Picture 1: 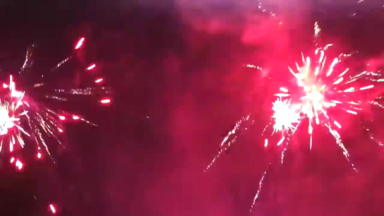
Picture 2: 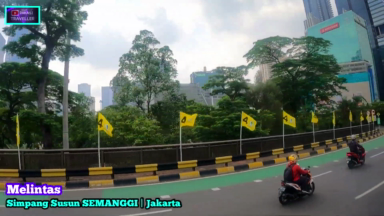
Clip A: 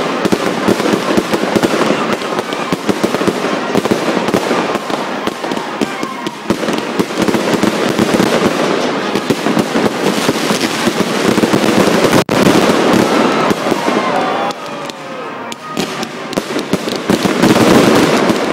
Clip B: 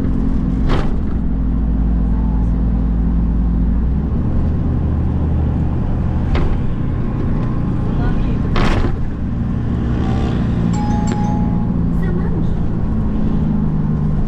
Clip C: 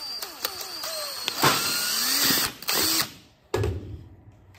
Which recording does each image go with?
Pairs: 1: A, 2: B